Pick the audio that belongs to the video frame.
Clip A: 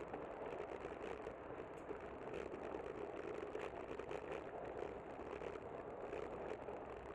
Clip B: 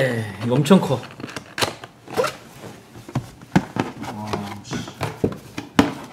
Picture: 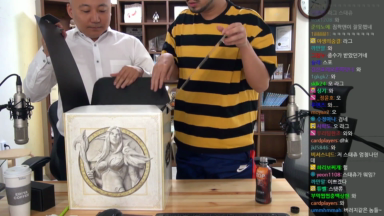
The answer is B